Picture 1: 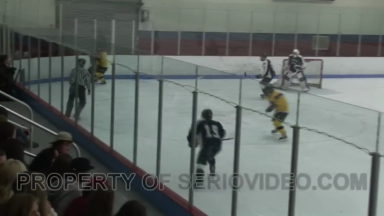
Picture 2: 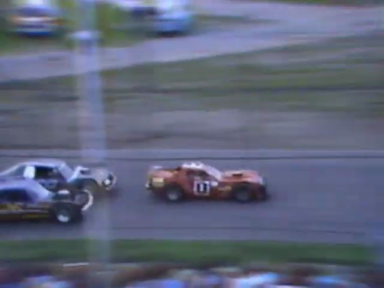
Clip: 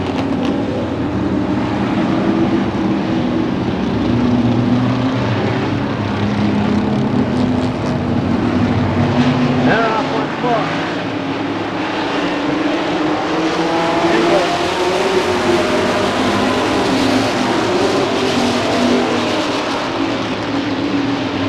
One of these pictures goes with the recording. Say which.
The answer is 2